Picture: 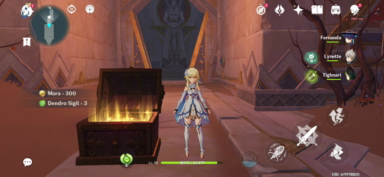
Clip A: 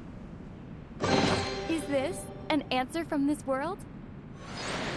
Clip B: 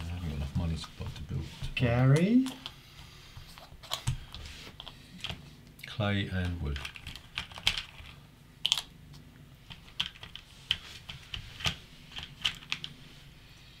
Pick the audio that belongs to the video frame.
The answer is A